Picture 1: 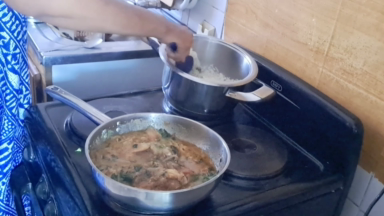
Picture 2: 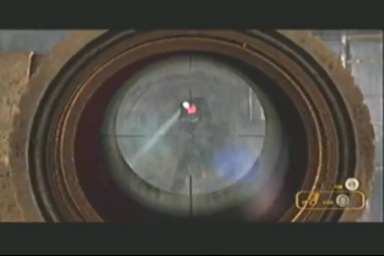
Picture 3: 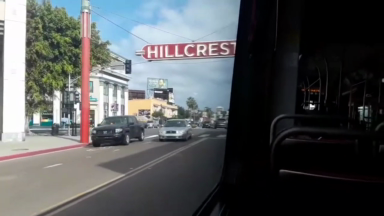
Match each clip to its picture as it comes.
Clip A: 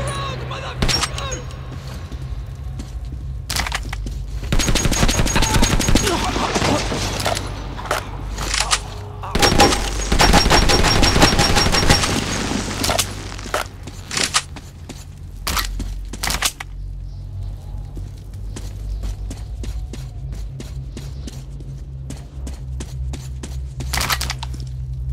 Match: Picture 2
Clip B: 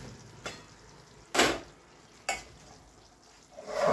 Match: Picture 1